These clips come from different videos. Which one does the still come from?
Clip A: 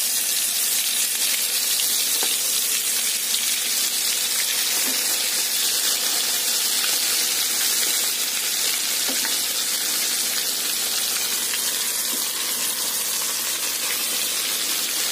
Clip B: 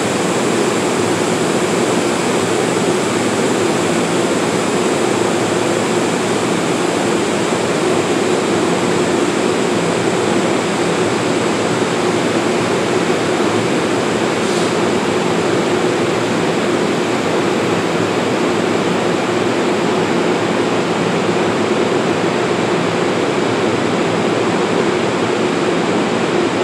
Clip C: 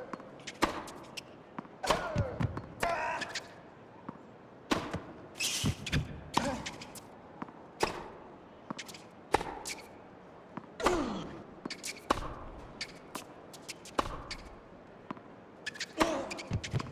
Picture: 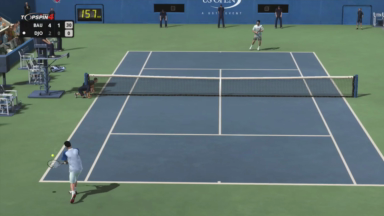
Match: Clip C